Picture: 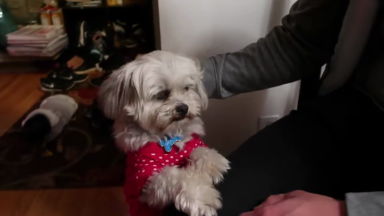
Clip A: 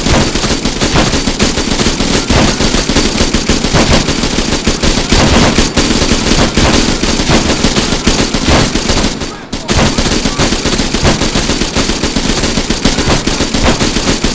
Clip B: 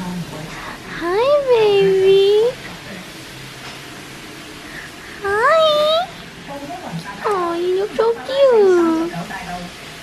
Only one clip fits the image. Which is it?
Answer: B